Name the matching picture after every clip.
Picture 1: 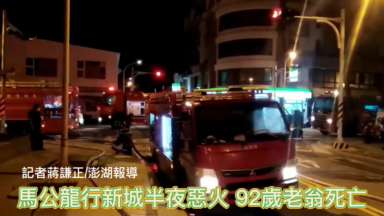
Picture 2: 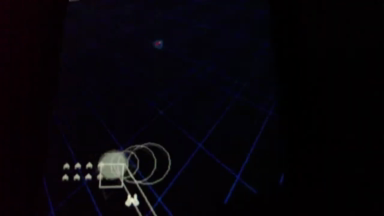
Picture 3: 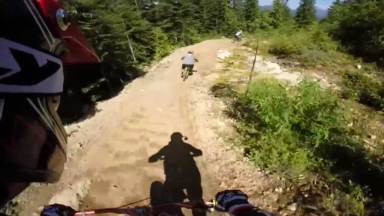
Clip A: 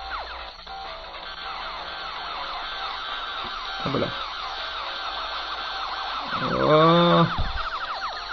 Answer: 2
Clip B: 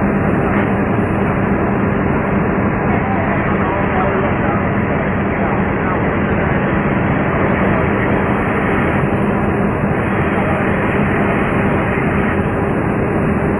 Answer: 1